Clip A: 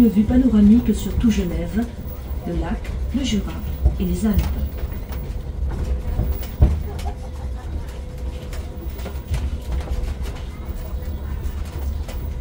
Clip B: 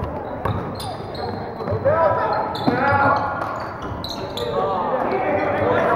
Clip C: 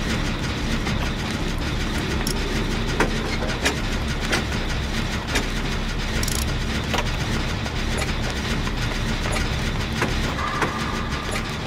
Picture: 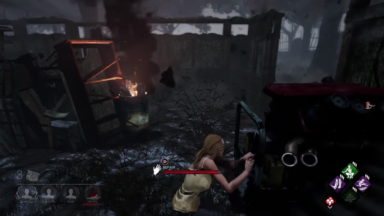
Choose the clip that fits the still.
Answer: C